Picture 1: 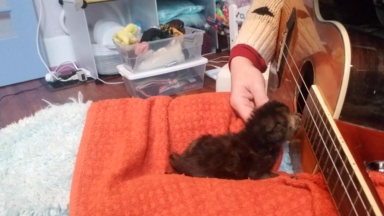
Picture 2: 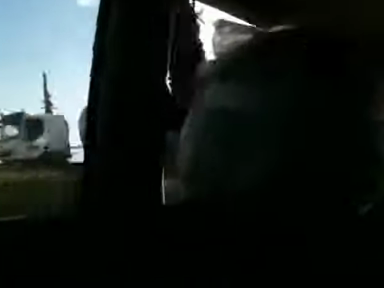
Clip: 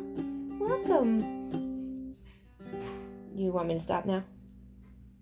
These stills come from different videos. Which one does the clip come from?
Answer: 1